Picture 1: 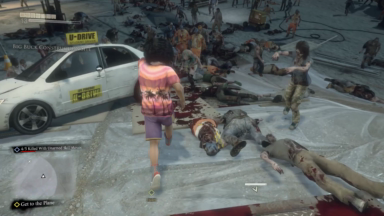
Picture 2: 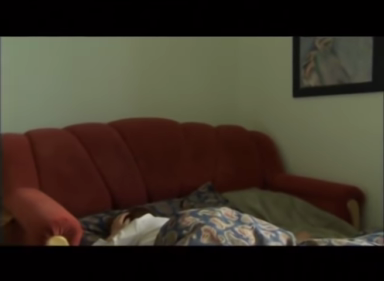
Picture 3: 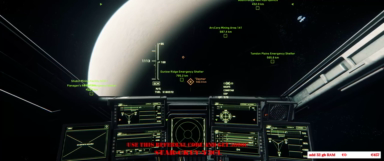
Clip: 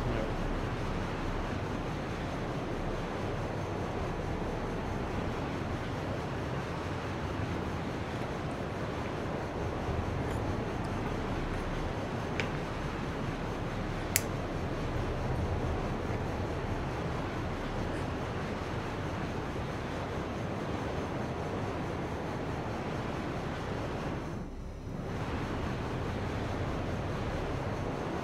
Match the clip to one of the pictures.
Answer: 3